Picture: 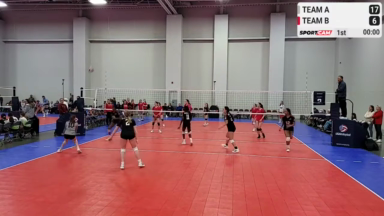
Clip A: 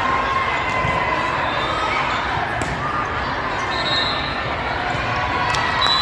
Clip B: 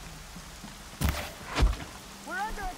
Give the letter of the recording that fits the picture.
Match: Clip A